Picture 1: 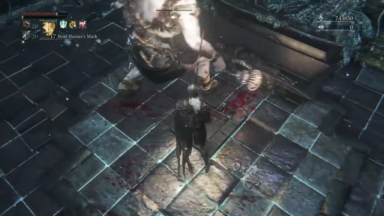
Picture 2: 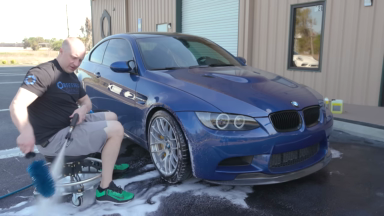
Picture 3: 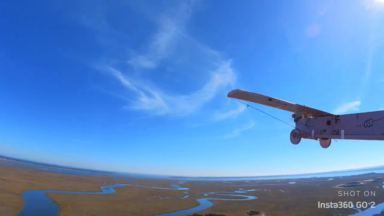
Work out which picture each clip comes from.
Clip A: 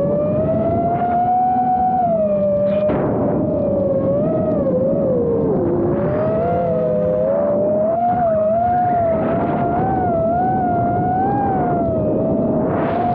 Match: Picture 3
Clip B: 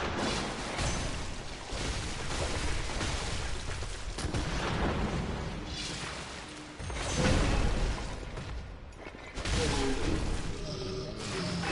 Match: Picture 1